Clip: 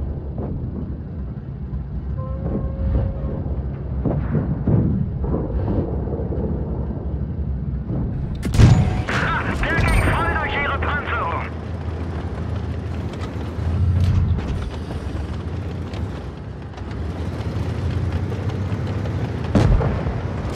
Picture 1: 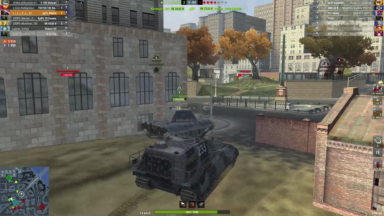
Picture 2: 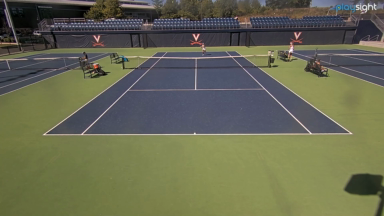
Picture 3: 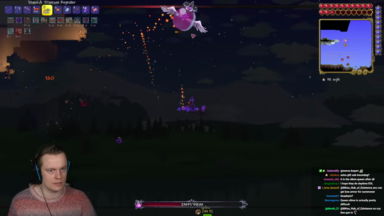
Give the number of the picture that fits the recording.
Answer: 1